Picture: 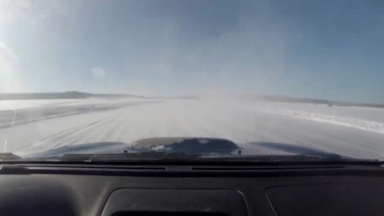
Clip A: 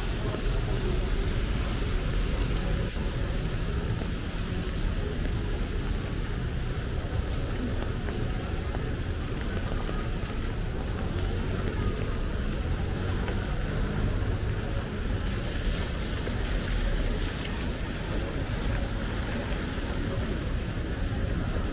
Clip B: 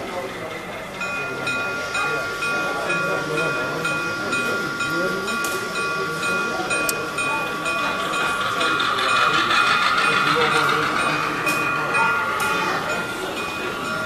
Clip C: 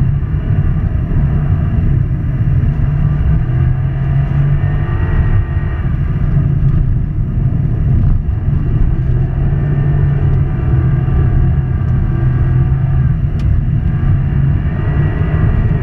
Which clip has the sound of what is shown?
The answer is C